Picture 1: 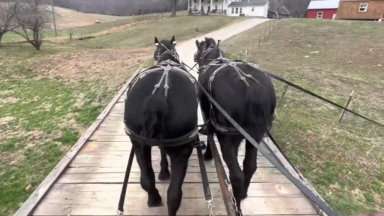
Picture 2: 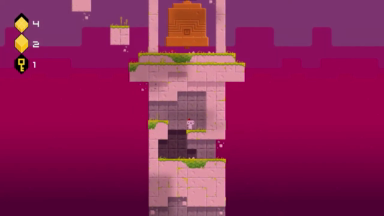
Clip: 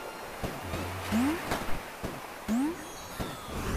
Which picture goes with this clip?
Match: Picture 2